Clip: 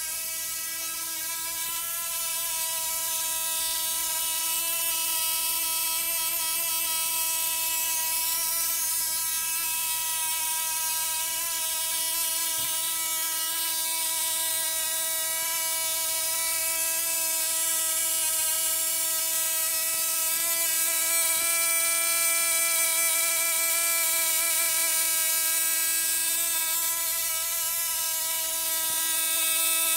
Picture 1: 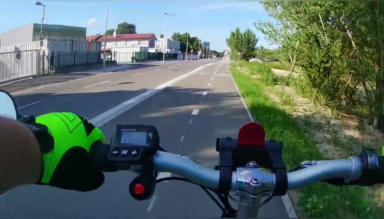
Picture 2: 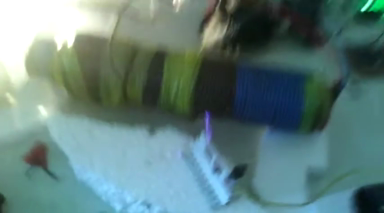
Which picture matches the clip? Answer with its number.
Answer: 2